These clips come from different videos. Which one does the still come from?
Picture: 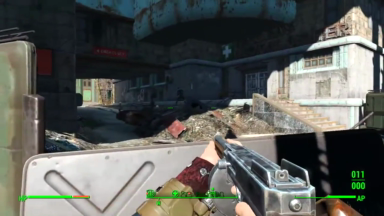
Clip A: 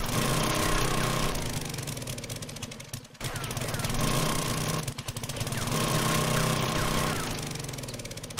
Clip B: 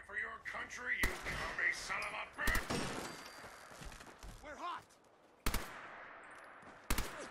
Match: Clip B